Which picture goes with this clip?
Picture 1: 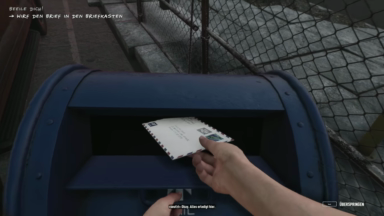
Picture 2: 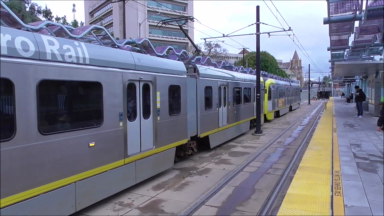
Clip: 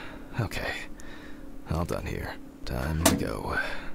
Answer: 1